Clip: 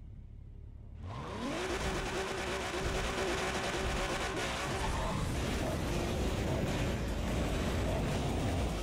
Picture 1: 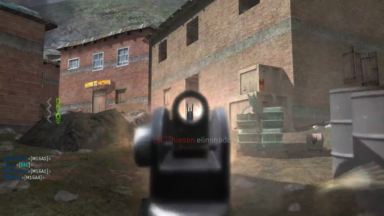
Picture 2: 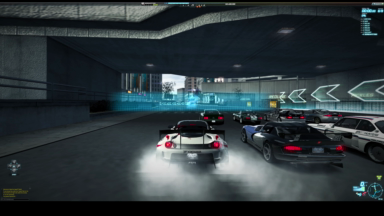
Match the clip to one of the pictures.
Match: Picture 2